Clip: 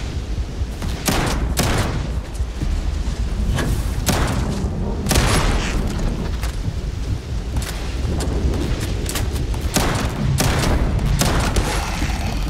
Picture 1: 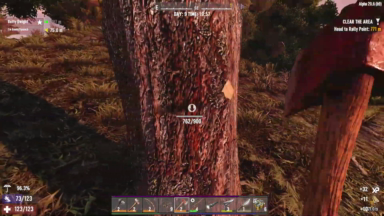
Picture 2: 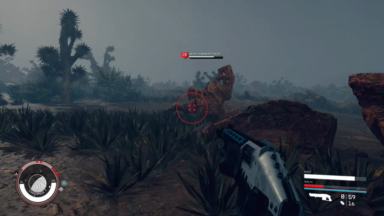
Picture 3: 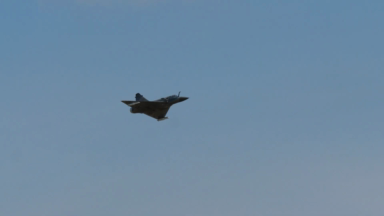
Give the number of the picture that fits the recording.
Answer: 2